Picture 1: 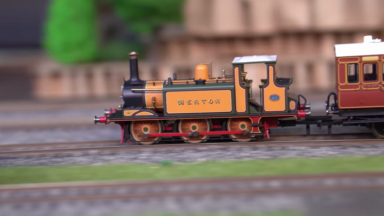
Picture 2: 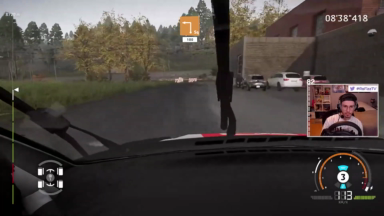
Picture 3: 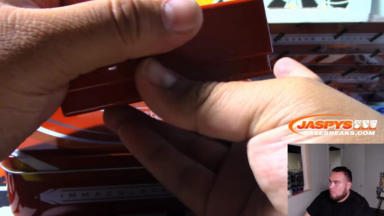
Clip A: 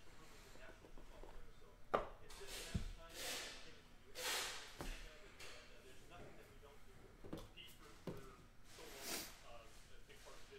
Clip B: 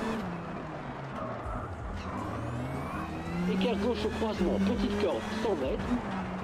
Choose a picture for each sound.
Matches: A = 3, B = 2